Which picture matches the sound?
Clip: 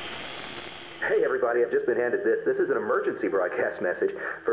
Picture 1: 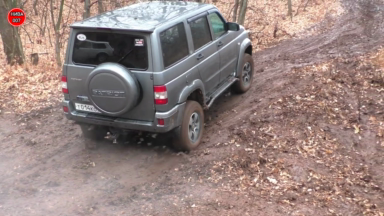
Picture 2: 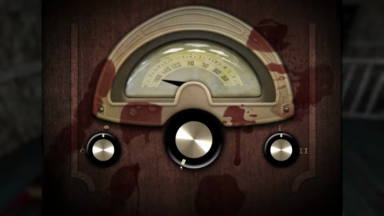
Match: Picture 2